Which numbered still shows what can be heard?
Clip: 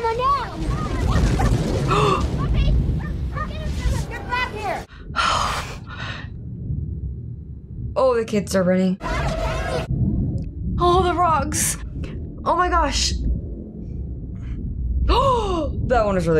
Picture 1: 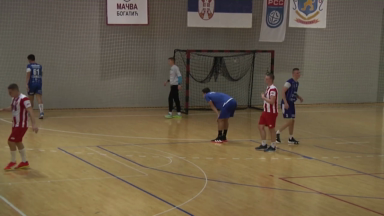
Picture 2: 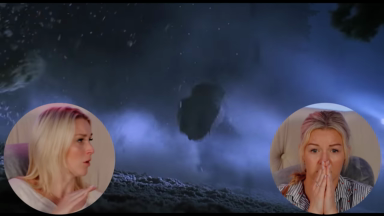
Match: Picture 2